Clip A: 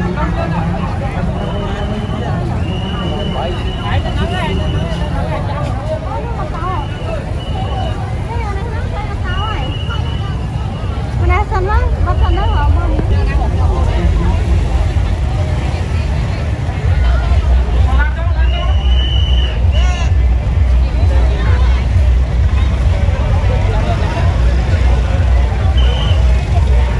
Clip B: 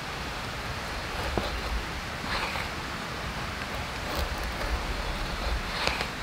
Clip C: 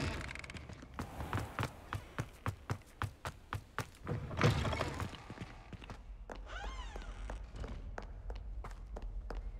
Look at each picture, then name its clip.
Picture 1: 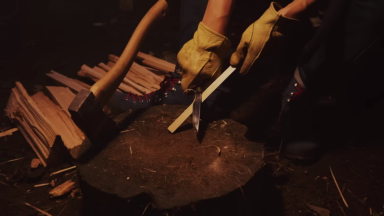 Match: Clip B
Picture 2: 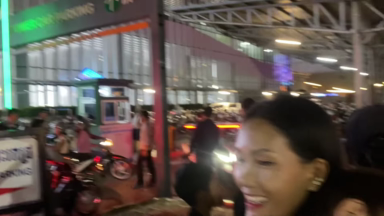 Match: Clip A